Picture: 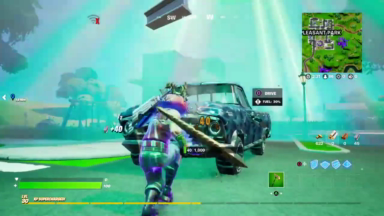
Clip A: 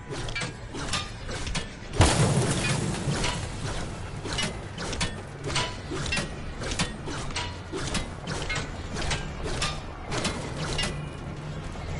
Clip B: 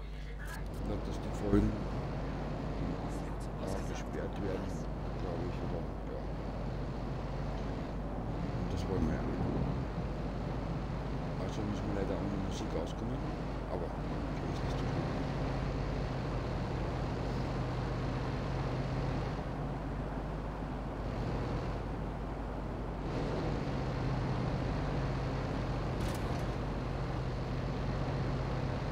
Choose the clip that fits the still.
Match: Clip A